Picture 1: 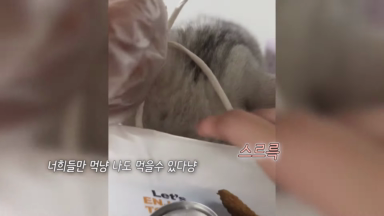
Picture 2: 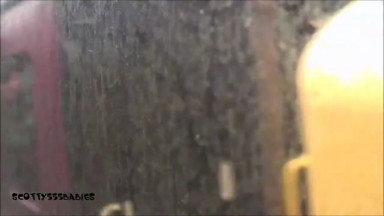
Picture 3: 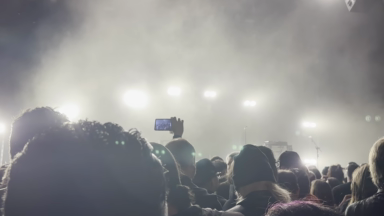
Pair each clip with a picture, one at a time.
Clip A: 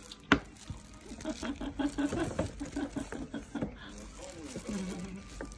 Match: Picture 1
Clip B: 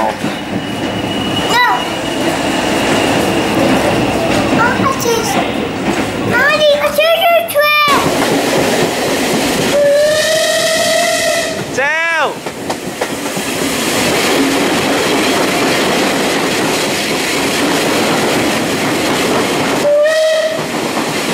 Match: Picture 2